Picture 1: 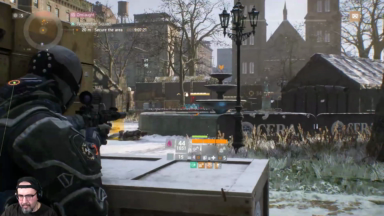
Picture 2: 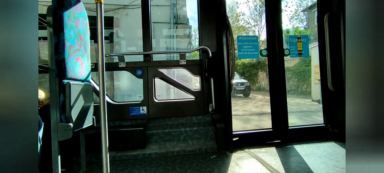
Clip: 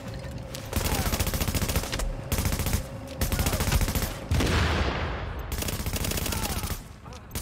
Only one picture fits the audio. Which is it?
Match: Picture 1